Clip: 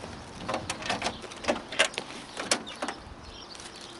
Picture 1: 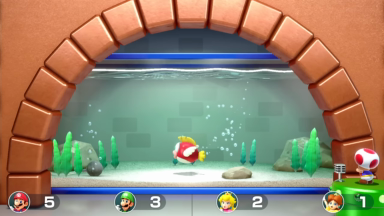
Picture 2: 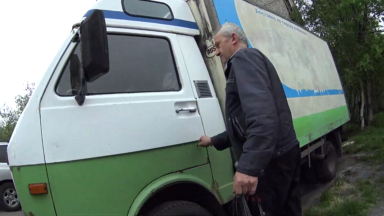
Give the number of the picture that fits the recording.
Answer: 2